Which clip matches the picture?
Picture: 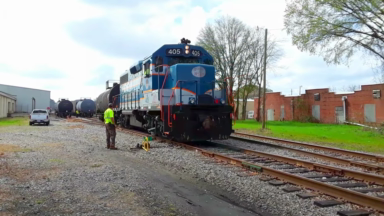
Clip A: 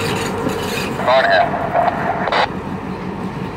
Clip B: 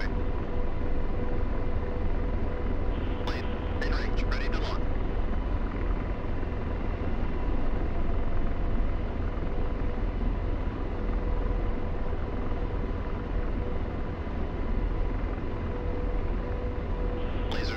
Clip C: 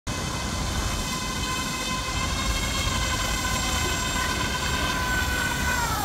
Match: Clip A